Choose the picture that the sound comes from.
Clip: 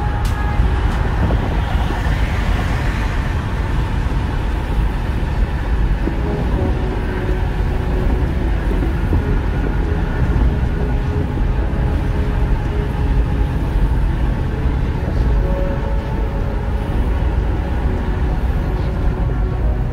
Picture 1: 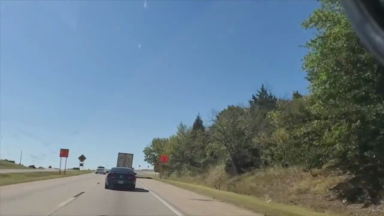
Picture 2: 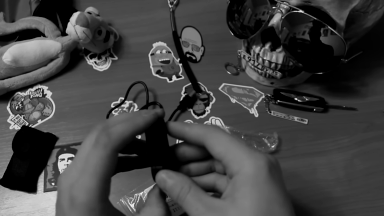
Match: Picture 1